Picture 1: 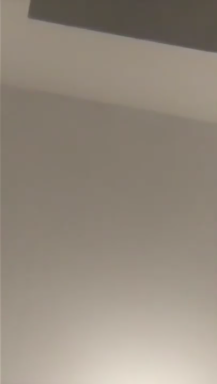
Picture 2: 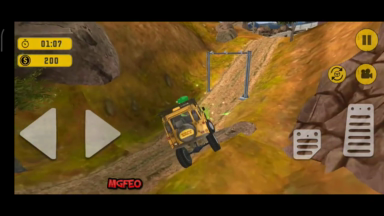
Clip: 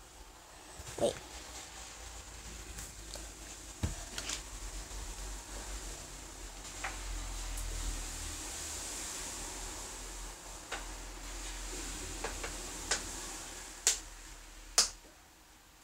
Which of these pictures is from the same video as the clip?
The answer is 1